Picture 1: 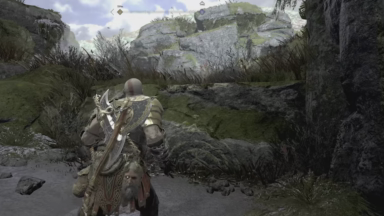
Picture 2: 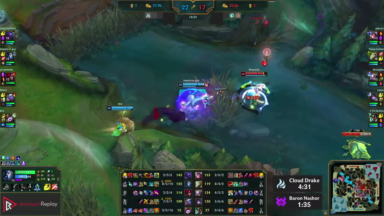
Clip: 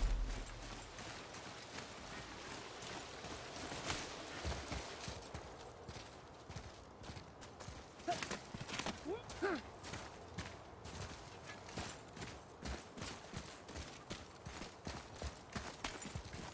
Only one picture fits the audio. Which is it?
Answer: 1